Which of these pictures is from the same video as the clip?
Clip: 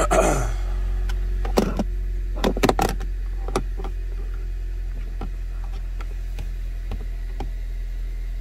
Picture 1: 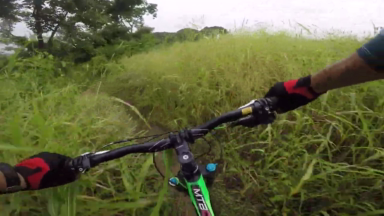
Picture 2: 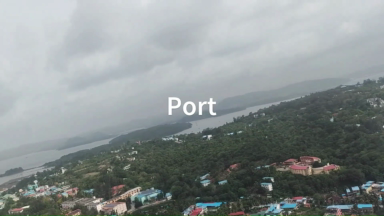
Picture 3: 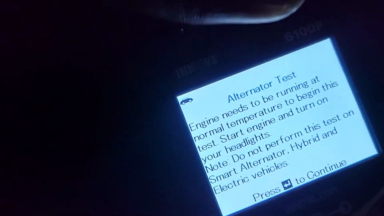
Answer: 3